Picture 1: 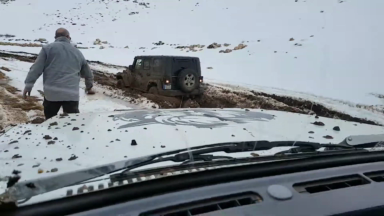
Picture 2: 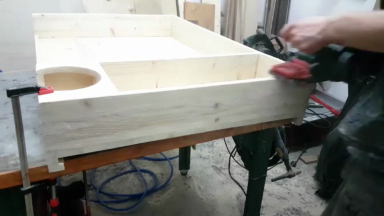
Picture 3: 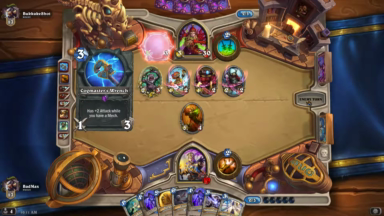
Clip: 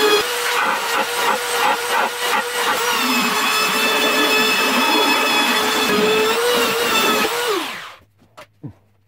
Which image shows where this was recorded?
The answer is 2